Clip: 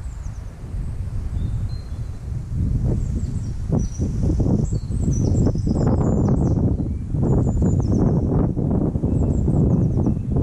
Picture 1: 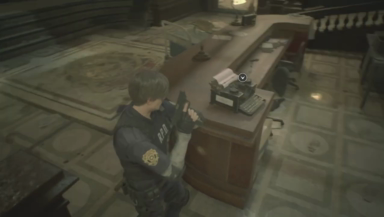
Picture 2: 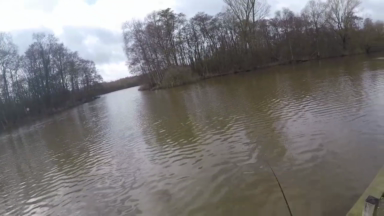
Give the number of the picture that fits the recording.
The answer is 2